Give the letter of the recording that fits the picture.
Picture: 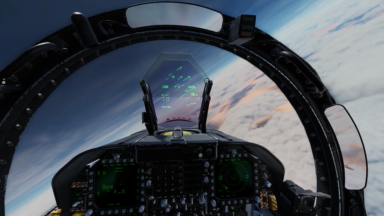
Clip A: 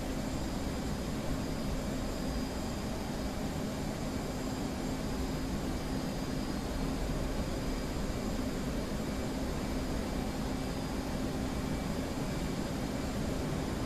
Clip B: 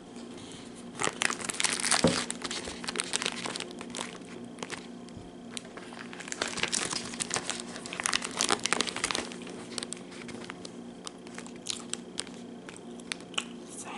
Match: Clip A